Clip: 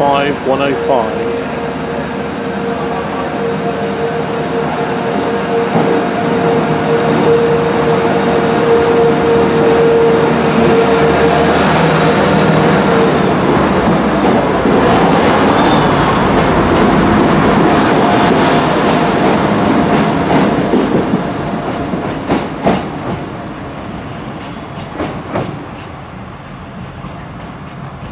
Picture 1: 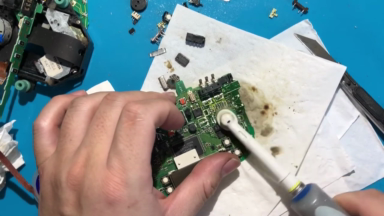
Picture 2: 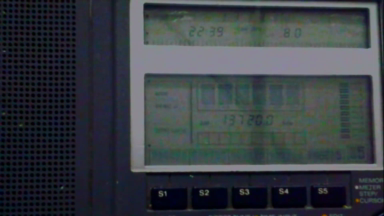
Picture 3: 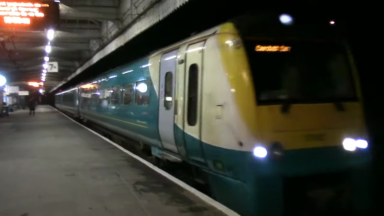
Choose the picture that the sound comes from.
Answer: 3